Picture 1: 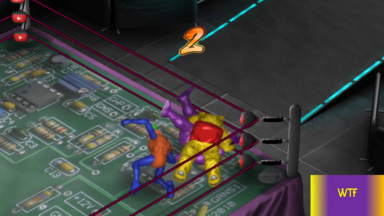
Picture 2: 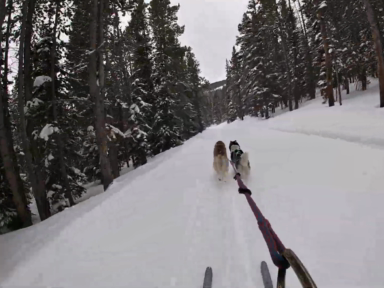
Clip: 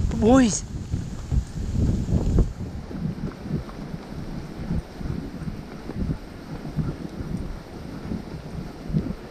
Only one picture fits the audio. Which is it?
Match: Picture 2